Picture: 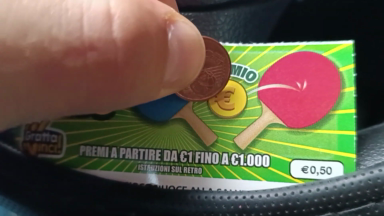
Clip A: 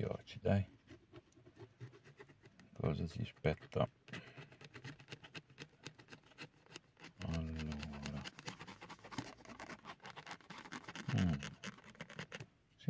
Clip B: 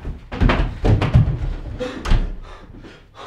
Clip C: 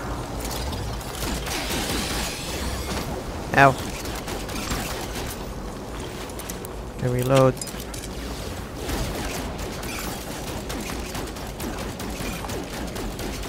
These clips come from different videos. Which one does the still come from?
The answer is A